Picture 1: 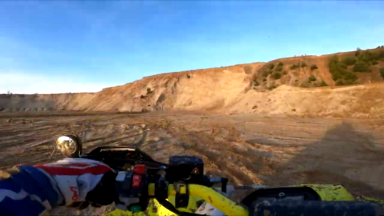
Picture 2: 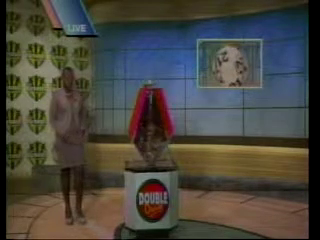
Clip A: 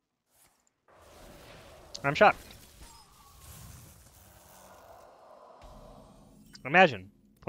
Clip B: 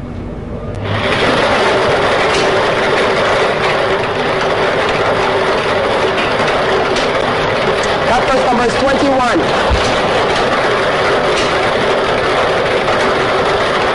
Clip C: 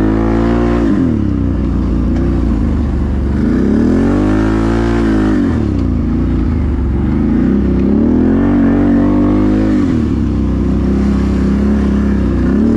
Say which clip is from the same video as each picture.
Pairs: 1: C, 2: B